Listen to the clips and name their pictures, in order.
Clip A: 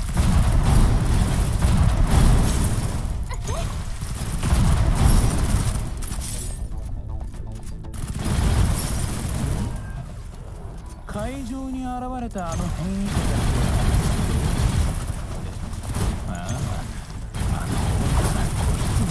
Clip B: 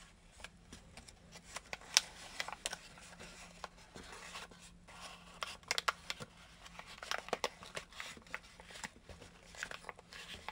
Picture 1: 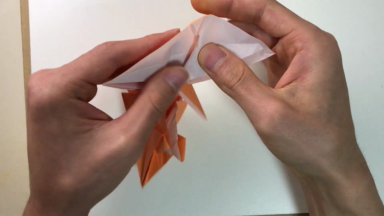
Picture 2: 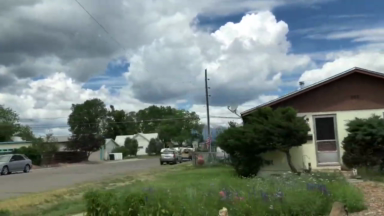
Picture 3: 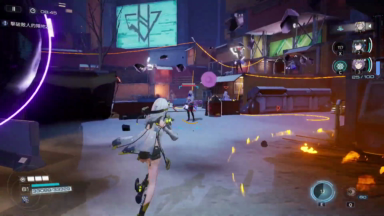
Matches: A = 3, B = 1